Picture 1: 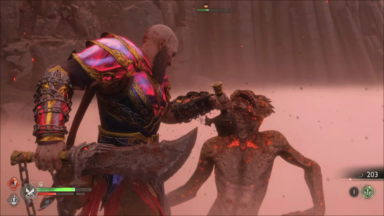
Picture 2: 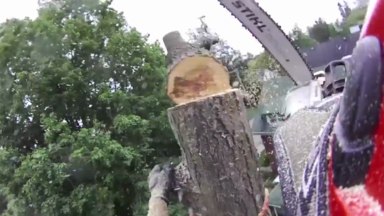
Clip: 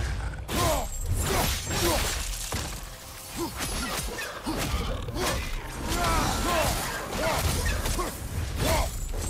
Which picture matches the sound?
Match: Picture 1